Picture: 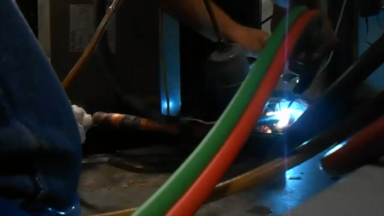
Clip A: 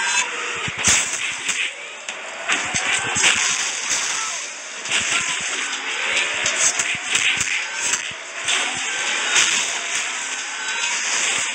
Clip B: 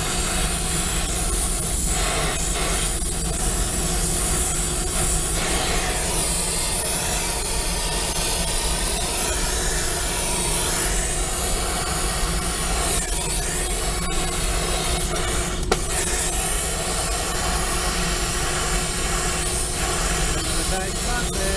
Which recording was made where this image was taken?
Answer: B